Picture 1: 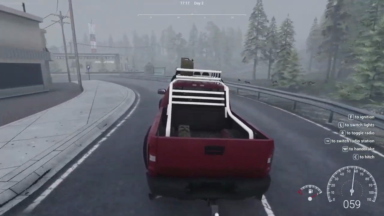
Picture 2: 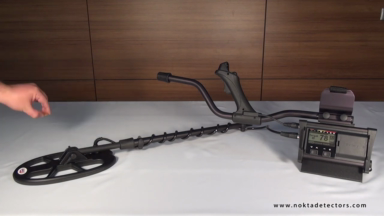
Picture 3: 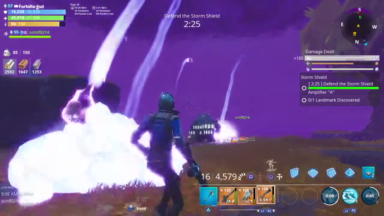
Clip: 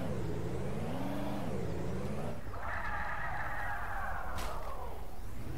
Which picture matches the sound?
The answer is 1